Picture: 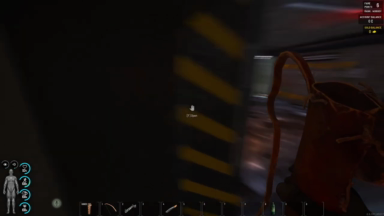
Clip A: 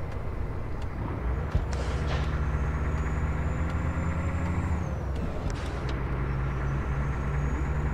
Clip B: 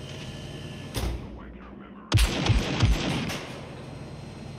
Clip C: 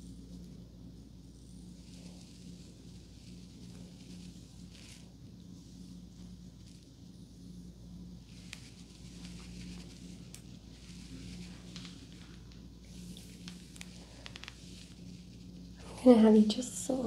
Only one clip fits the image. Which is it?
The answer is B